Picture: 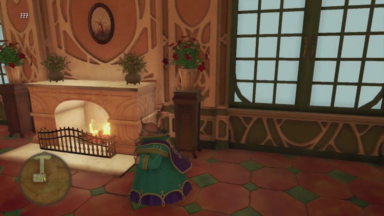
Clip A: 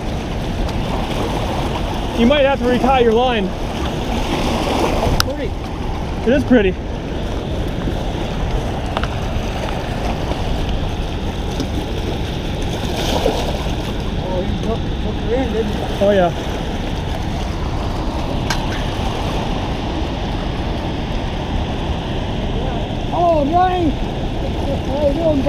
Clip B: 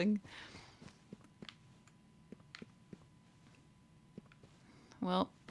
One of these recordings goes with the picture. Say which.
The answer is B